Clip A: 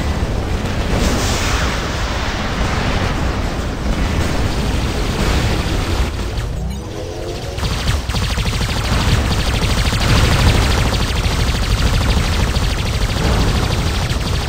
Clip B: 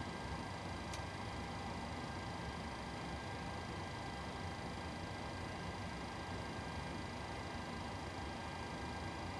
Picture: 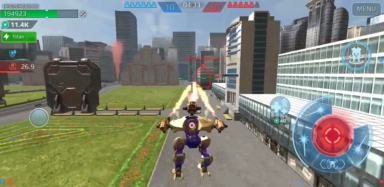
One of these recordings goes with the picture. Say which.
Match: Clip A